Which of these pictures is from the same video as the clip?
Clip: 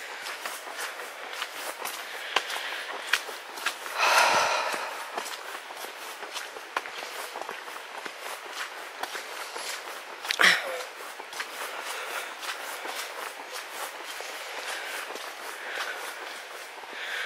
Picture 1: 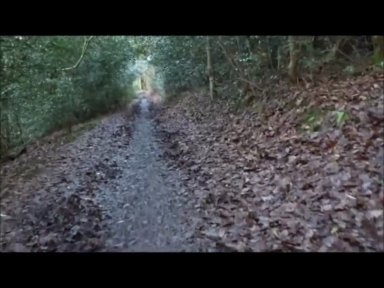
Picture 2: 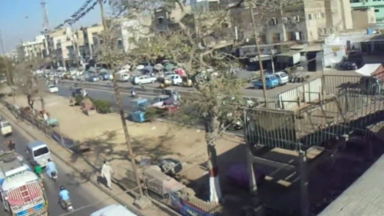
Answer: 1